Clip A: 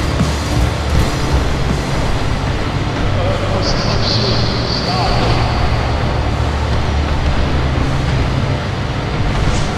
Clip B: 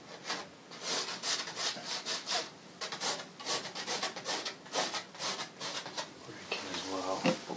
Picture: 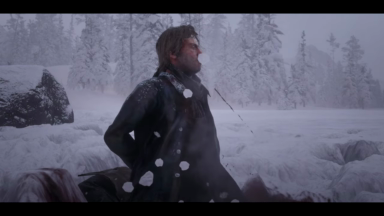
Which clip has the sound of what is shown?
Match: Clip A